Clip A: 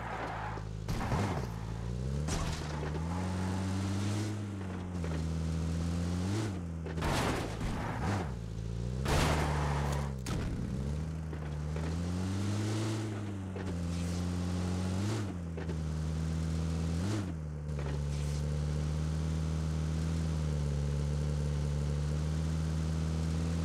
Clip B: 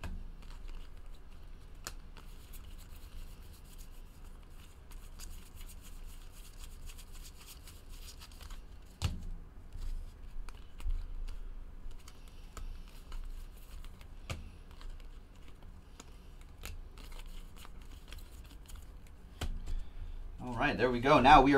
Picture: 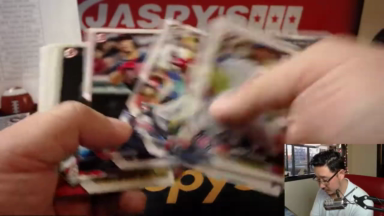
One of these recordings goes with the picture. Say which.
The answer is B